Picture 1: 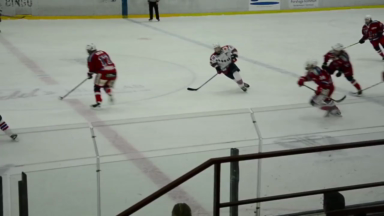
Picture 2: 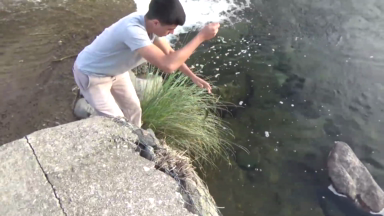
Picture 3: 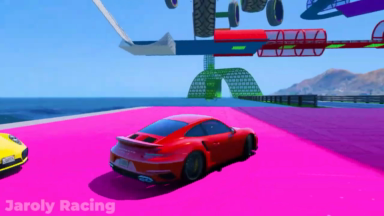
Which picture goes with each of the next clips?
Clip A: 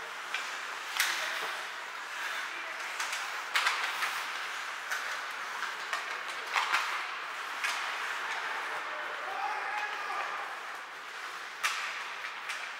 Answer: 1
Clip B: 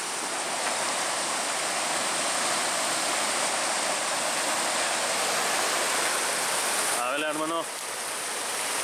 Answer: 2